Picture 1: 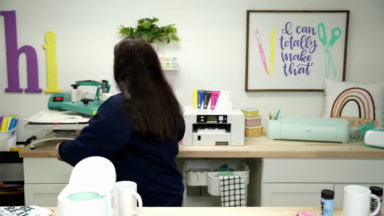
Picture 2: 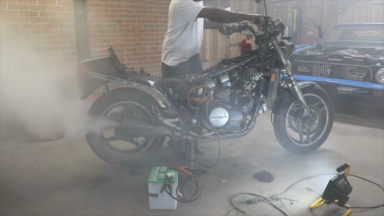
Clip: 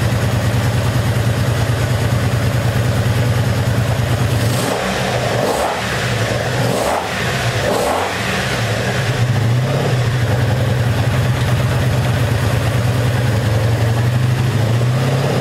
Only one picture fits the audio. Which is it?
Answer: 2